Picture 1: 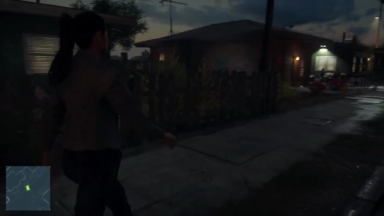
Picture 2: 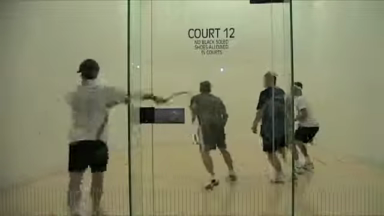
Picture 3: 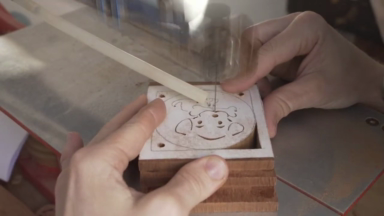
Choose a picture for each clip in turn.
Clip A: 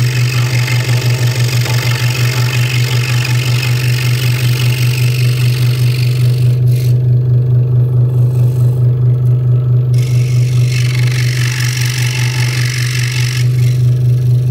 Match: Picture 3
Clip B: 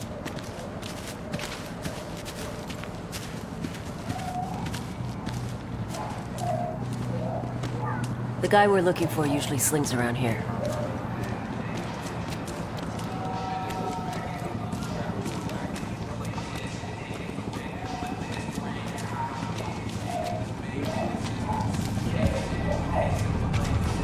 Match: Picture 1